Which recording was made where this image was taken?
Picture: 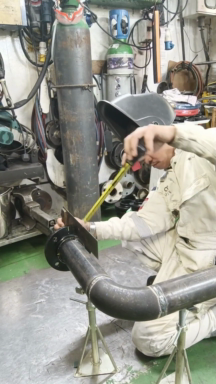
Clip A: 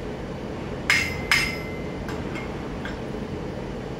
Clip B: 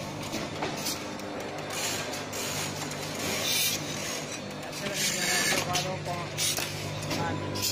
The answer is A